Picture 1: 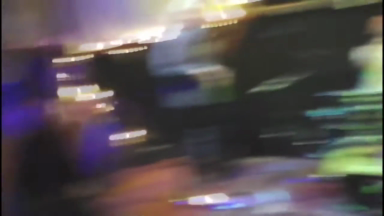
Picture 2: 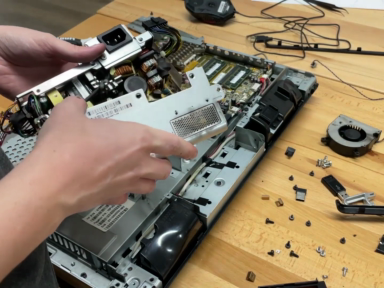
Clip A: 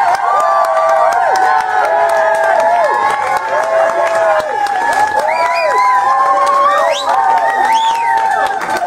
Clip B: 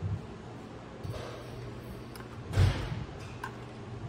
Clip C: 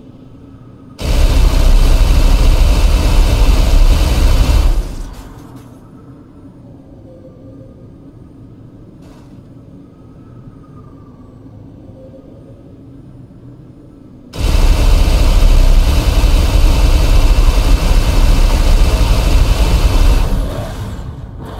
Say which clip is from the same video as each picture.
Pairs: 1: A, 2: B